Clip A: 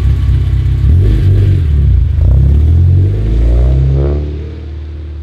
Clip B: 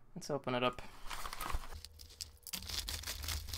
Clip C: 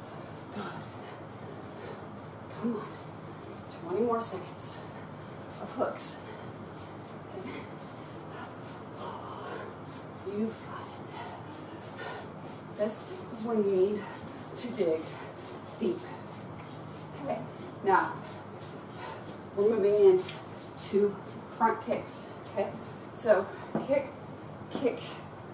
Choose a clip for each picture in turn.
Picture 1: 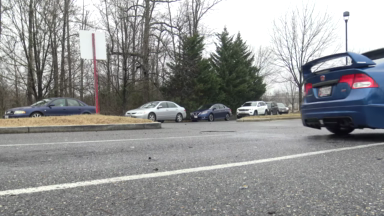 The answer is A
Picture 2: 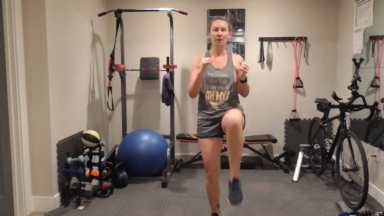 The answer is C